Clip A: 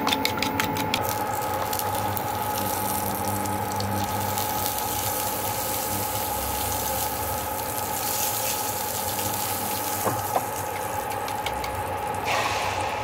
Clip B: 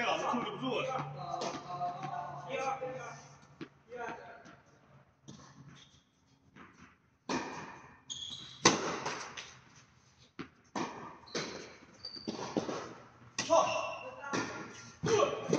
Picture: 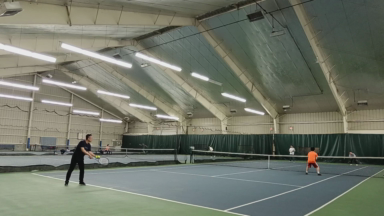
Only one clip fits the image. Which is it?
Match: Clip B